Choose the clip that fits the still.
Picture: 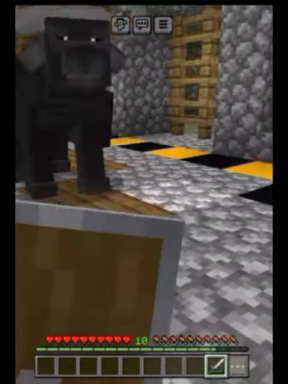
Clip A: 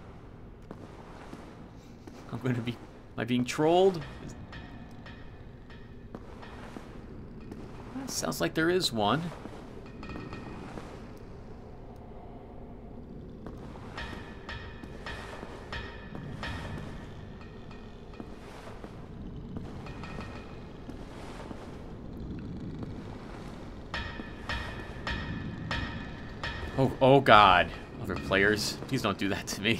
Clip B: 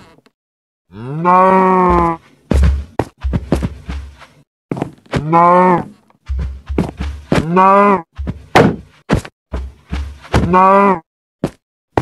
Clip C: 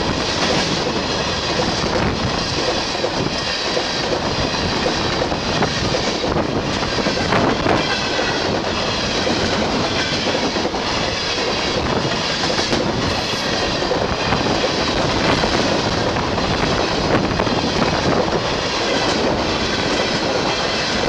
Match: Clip B